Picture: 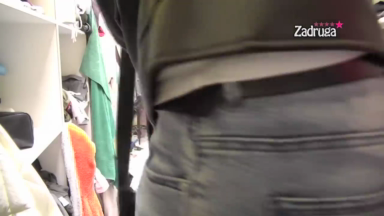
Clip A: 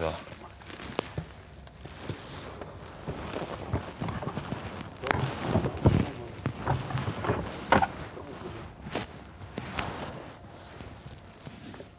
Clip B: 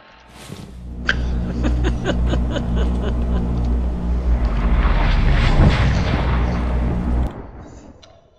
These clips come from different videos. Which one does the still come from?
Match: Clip A